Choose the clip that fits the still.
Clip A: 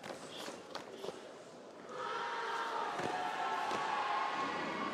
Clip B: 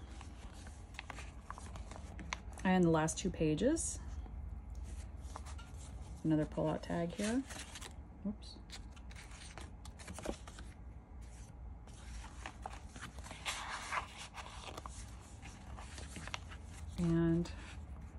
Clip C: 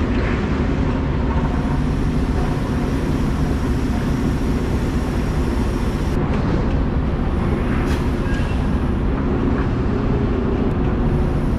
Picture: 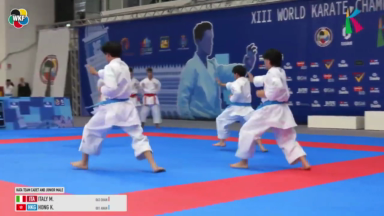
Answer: A